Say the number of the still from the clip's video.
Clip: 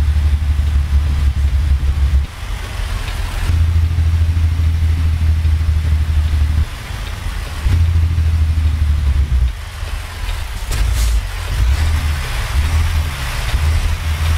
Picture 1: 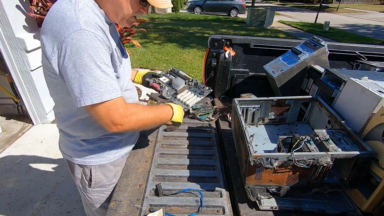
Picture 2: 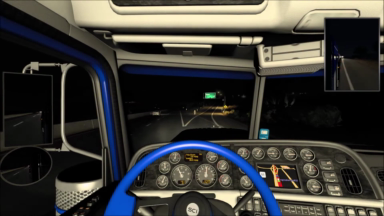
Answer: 2